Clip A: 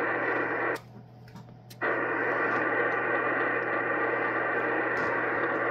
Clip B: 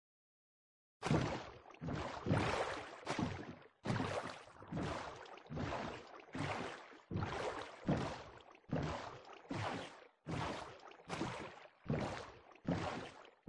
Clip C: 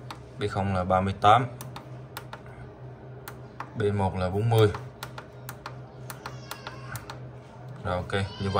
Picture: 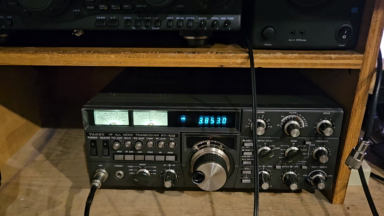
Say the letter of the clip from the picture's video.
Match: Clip A